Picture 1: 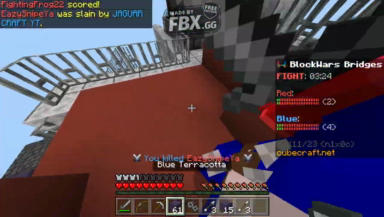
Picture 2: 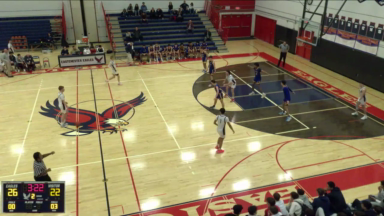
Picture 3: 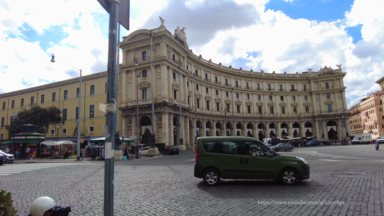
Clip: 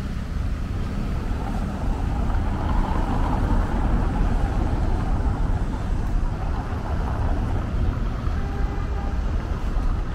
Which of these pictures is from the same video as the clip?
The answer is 3